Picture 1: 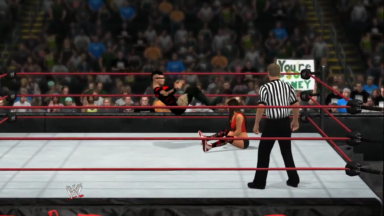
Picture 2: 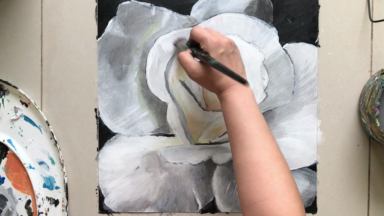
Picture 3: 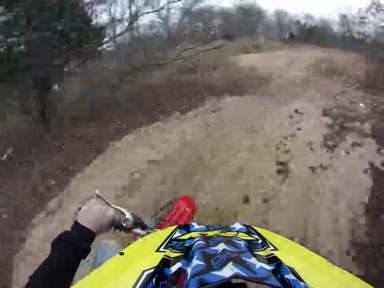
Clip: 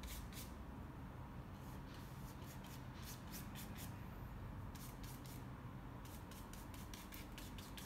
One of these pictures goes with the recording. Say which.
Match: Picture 2